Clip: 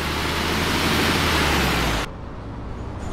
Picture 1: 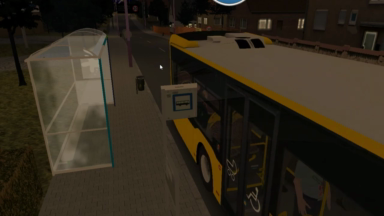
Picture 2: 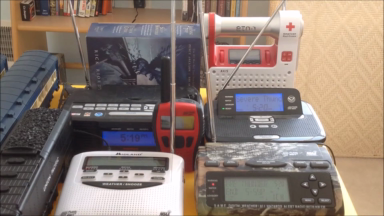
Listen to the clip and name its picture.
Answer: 1